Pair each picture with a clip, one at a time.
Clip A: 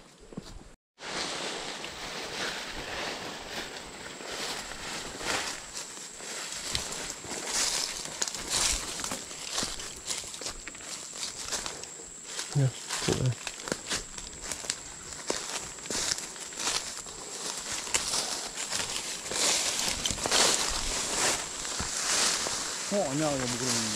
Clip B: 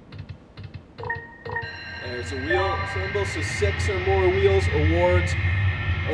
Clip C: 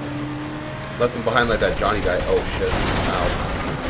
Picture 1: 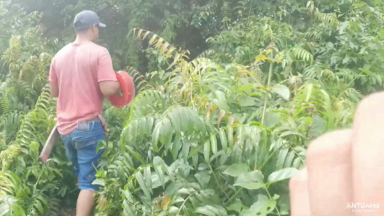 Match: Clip A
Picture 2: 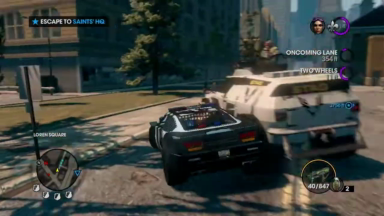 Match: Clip C